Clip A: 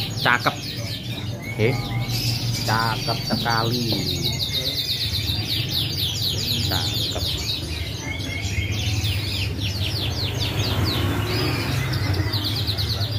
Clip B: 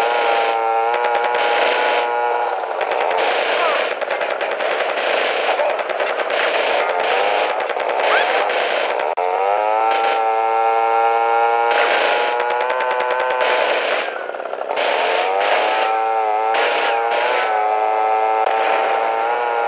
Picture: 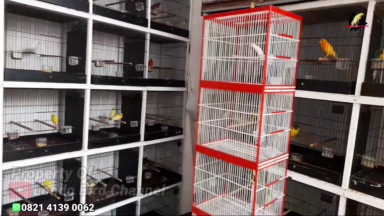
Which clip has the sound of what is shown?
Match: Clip A